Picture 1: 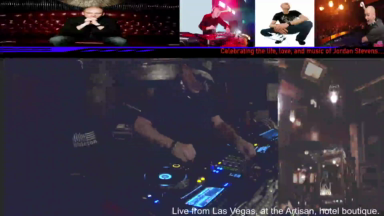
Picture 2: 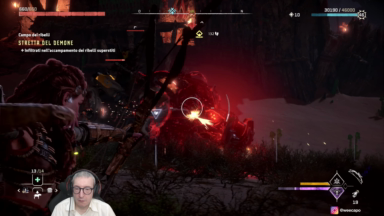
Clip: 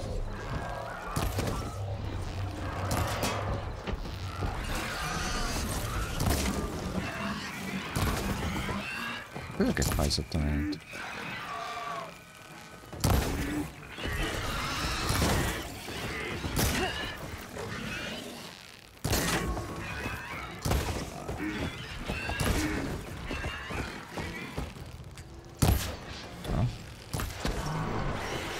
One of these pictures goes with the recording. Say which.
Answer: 2